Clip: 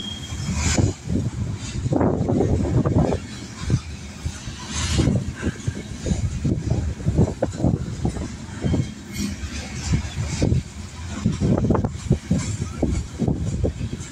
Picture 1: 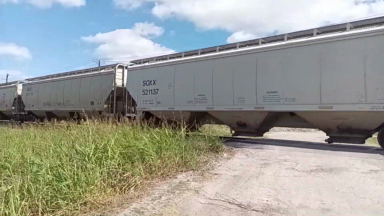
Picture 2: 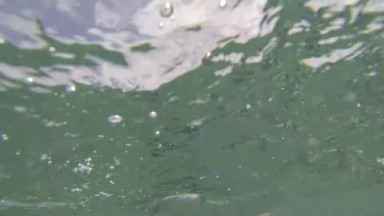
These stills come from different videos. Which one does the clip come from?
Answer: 1